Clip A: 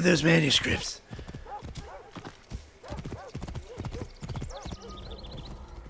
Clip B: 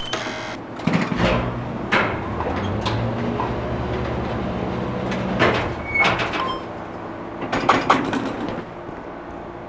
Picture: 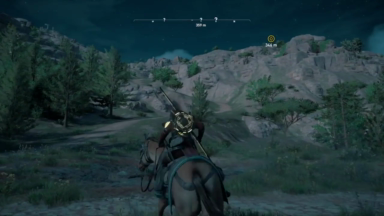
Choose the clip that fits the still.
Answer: A